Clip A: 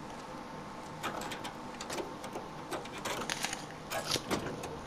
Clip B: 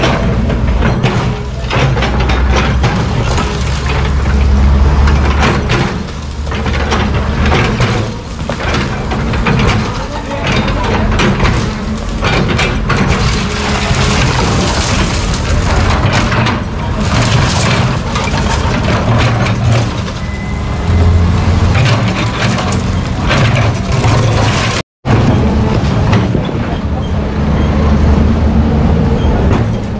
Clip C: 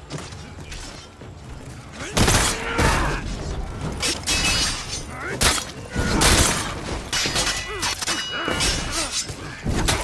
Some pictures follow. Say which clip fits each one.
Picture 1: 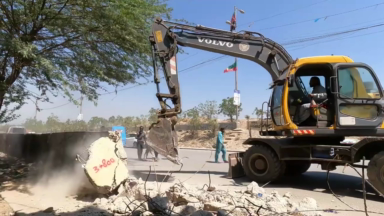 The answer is B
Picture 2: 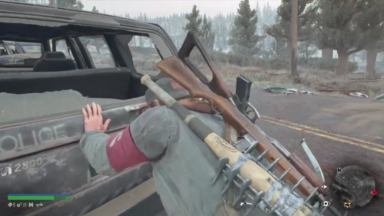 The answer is A